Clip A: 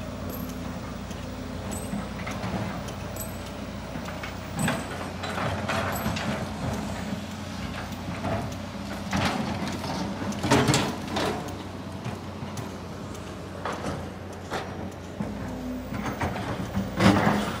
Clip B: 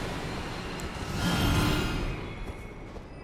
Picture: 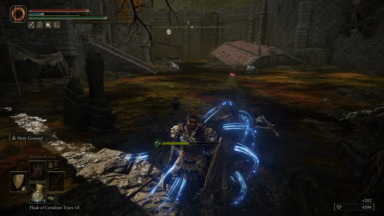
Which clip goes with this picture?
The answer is B